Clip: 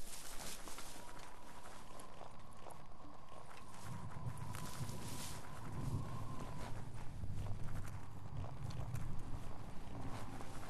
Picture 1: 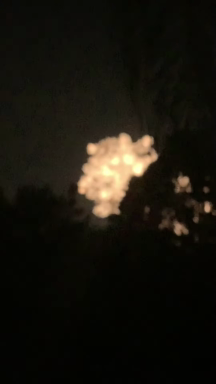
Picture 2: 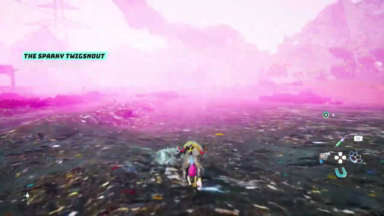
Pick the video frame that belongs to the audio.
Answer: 2